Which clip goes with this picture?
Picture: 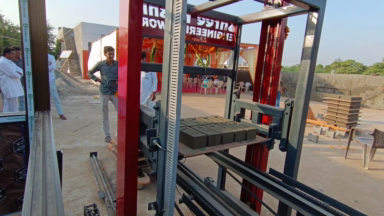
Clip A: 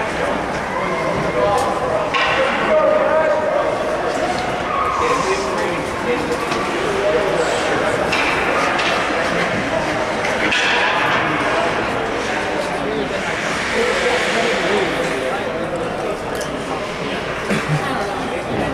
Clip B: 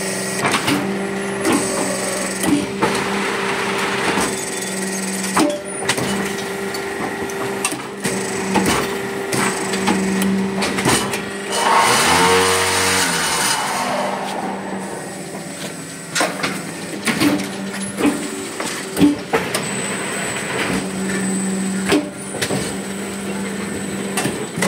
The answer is B